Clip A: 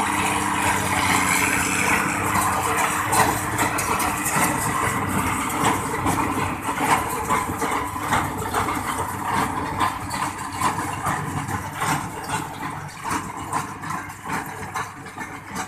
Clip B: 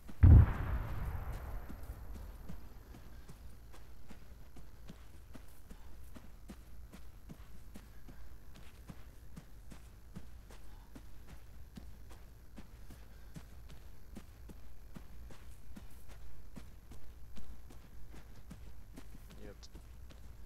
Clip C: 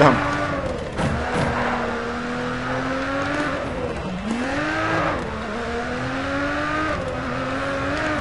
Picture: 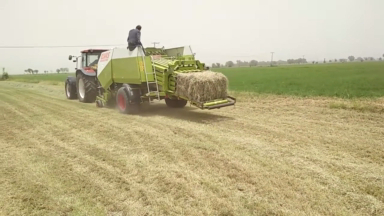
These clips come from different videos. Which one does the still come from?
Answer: A